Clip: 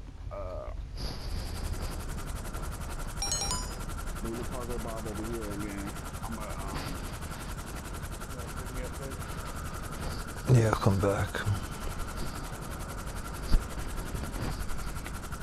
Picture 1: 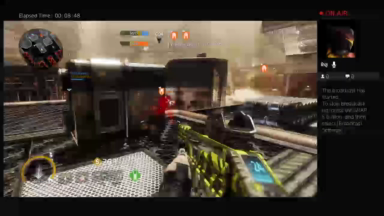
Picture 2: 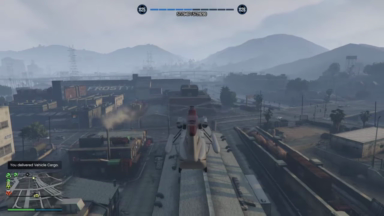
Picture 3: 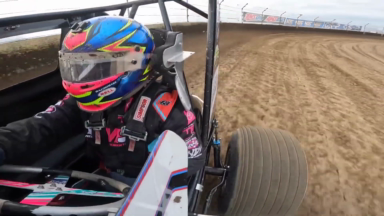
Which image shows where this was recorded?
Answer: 2